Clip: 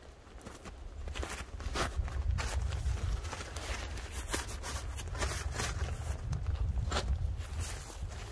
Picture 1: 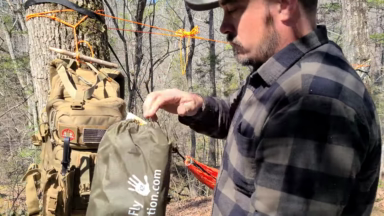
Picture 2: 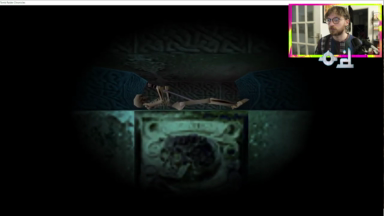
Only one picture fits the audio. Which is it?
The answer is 1